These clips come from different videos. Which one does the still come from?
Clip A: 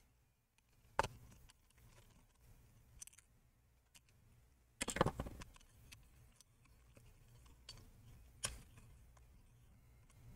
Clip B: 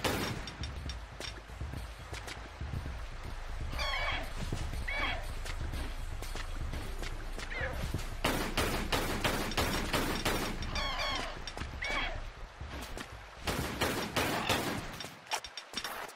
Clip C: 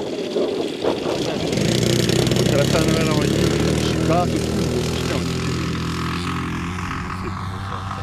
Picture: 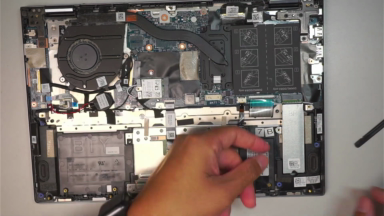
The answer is A